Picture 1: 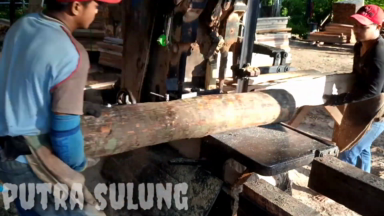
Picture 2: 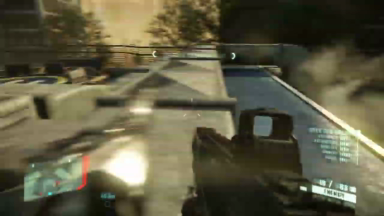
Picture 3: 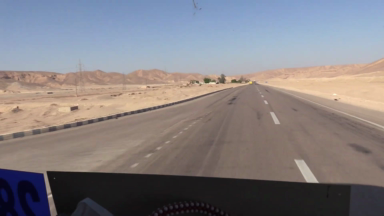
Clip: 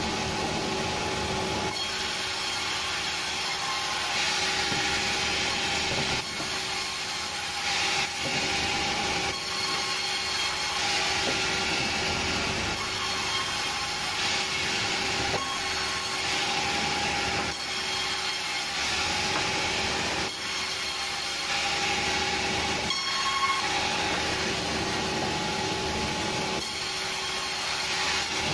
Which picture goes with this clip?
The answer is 1